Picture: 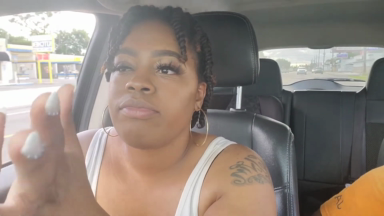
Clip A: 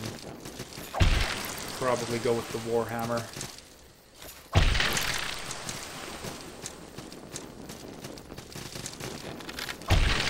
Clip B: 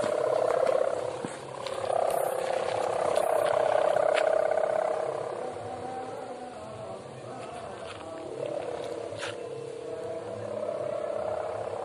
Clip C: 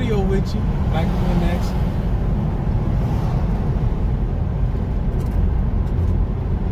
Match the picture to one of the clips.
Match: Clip C